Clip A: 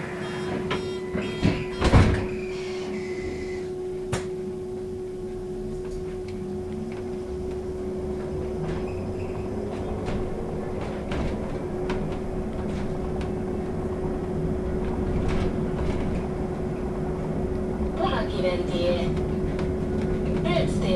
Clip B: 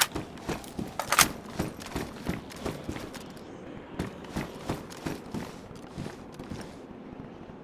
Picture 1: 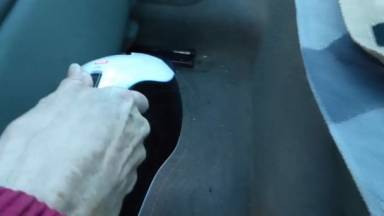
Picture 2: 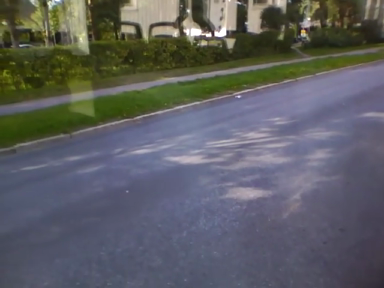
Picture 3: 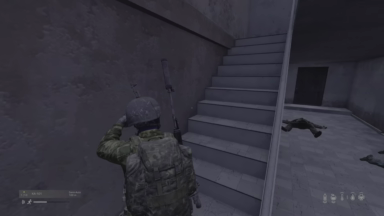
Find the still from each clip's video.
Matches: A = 2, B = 3